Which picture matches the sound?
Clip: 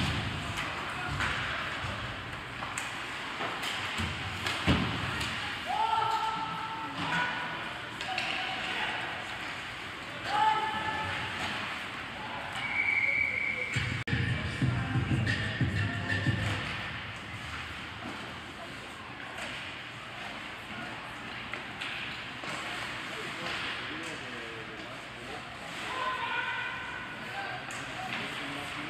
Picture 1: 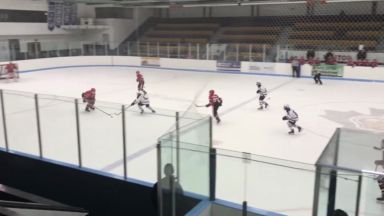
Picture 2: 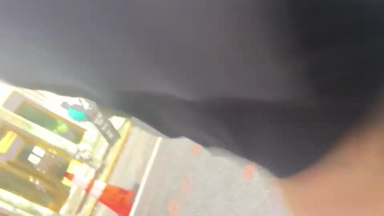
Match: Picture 1